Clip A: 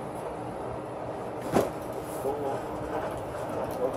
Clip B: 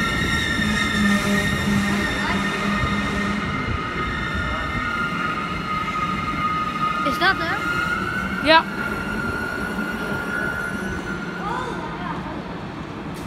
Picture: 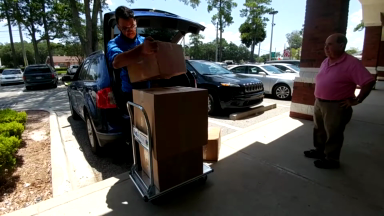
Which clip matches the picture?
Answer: A